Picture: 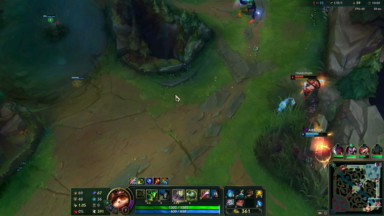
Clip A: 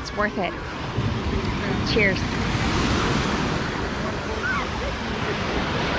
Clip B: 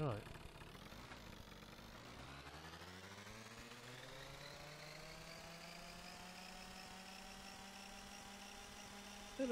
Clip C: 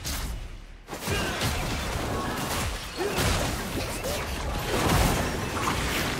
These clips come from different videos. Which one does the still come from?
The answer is C